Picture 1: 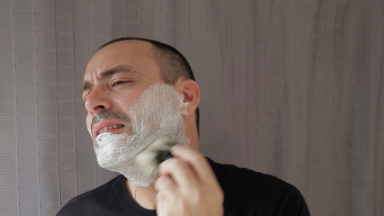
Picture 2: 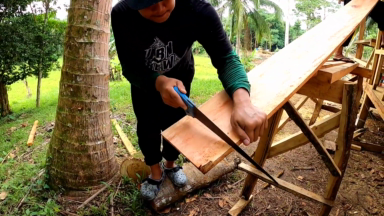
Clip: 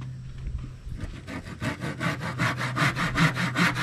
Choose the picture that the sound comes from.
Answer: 2